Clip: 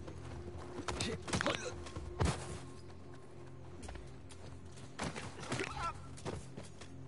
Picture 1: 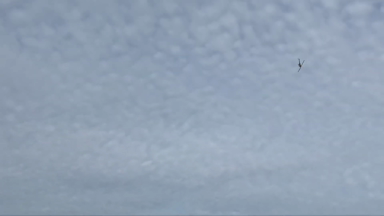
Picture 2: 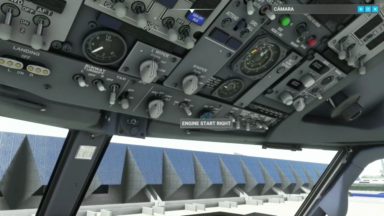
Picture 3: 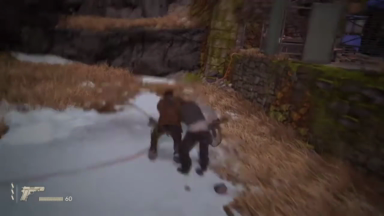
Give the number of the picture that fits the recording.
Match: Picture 3